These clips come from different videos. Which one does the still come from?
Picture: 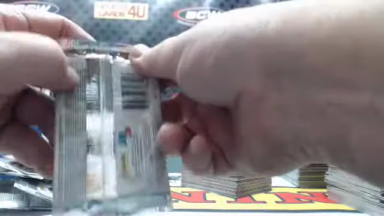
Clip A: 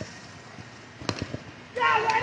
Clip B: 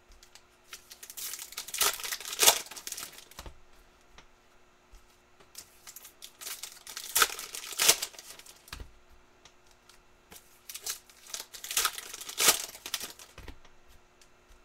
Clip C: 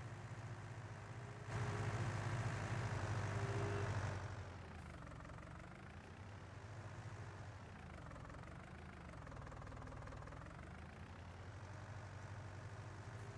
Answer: B